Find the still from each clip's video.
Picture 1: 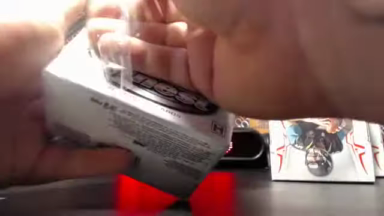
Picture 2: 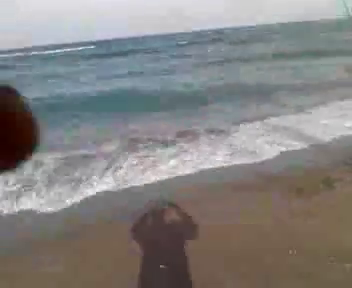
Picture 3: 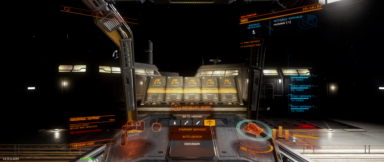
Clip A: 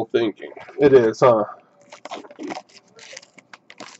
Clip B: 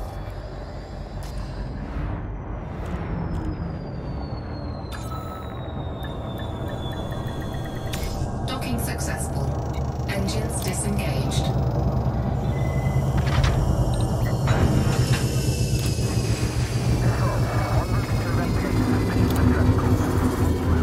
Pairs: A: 1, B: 3